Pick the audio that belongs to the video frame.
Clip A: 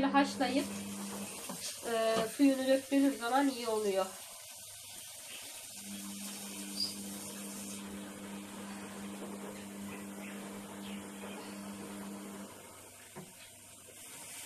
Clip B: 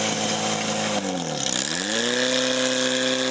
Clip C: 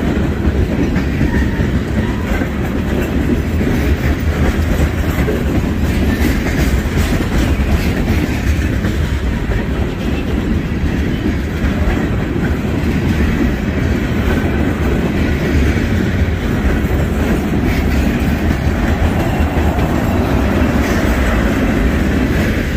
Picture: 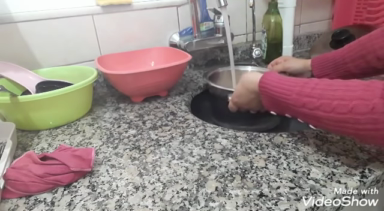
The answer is A